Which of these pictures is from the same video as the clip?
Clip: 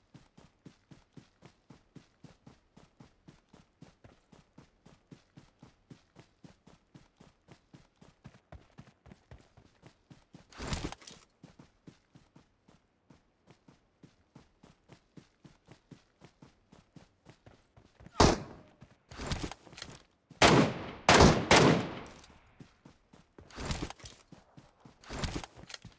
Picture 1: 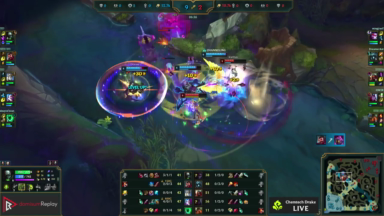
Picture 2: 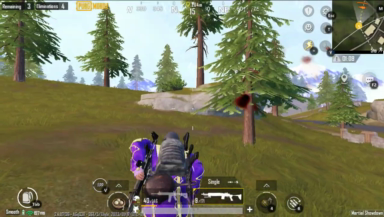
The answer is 2